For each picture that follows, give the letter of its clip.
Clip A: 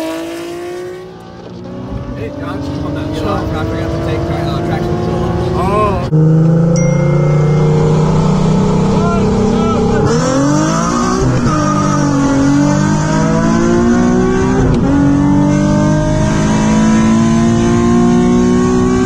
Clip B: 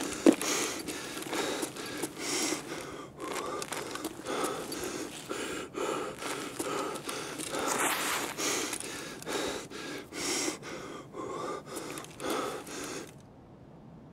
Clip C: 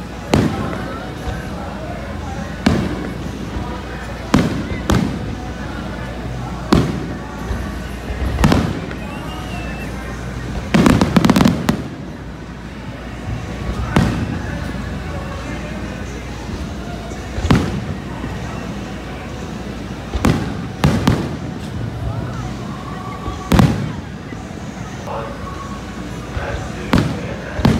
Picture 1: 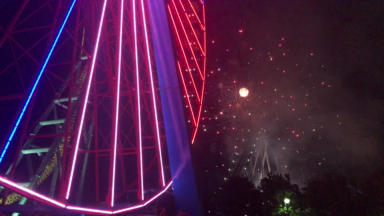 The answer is C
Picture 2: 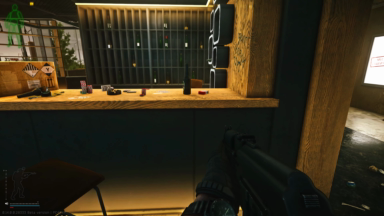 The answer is B